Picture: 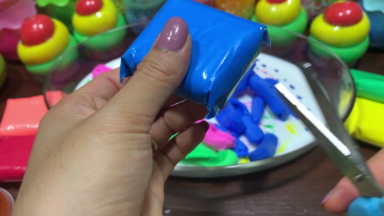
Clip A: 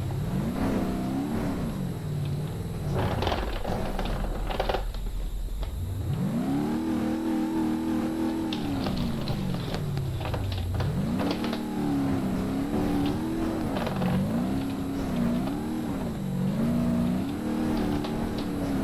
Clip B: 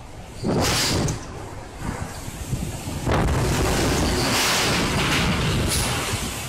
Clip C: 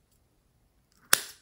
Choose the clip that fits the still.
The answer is C